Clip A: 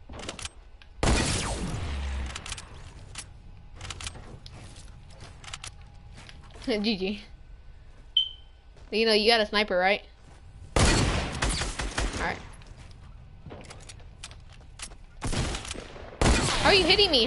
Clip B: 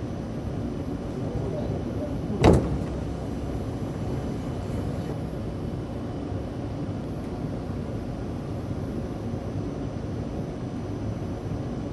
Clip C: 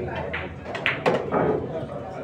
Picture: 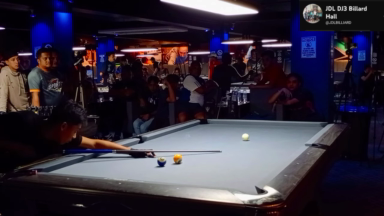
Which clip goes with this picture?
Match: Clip C